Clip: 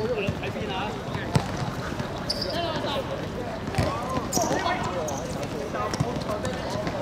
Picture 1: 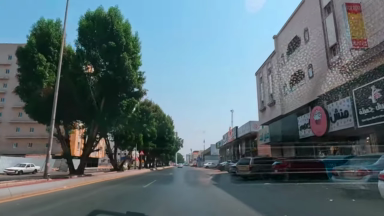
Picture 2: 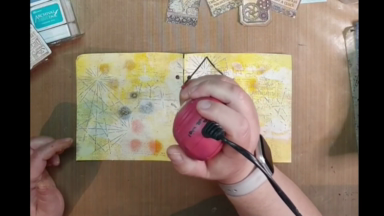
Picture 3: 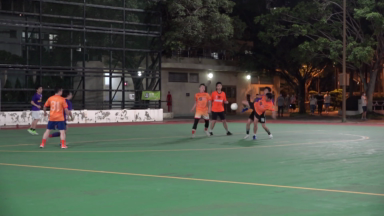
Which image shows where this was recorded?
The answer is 3